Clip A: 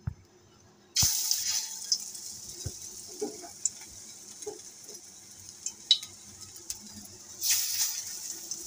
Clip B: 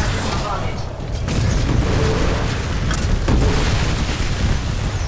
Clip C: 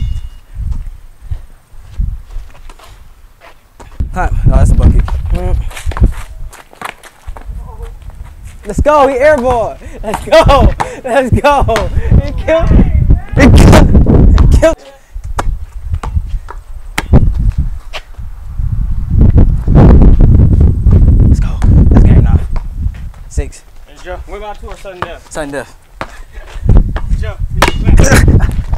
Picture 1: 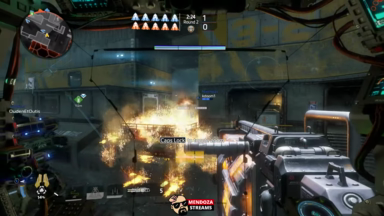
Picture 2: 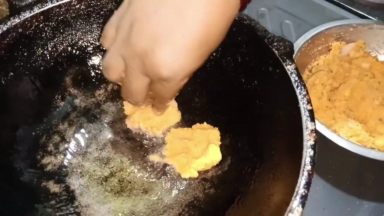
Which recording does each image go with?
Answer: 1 B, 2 A